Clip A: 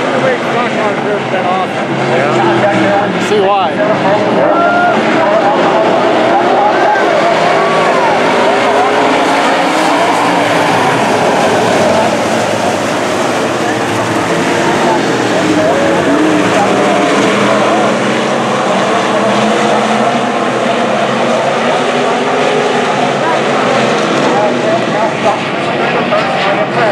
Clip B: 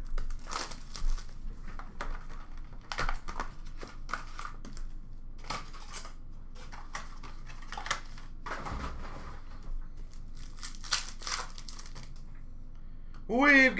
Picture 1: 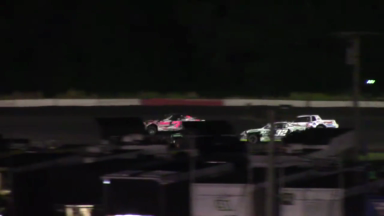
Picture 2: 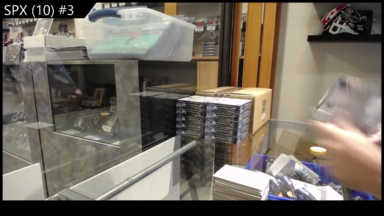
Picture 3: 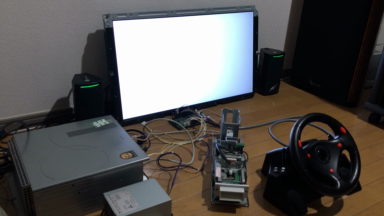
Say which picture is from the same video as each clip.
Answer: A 1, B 2